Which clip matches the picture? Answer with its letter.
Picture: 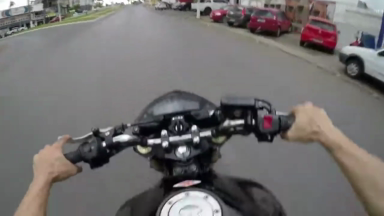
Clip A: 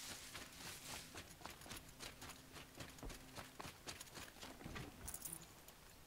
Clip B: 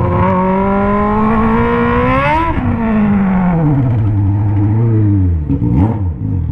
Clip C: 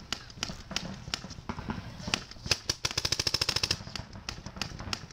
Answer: B